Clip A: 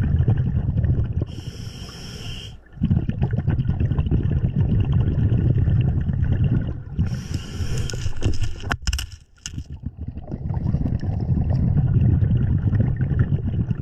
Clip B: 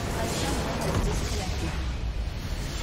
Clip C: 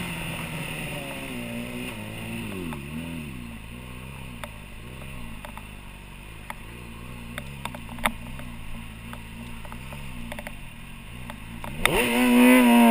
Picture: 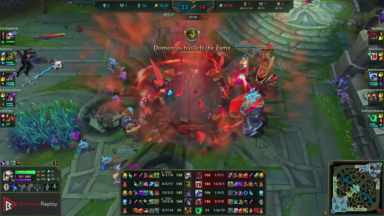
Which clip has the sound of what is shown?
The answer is B